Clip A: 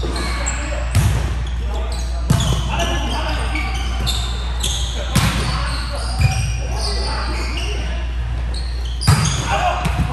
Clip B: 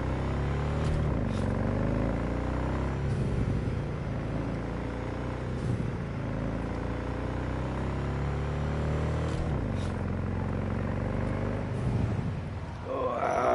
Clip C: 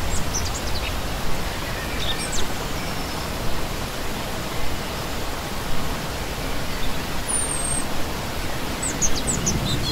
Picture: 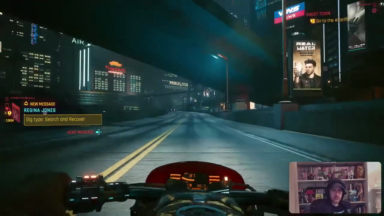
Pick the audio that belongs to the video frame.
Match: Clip B